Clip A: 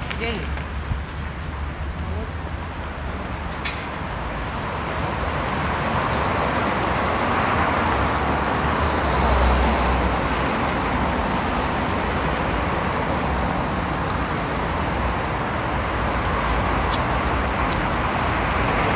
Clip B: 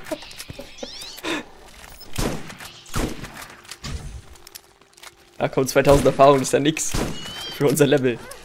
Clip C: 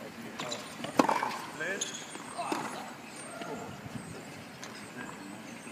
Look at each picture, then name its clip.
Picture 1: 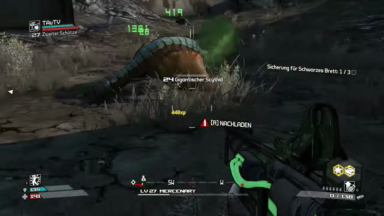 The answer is B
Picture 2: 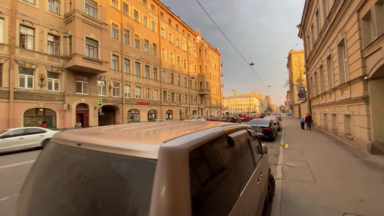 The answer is A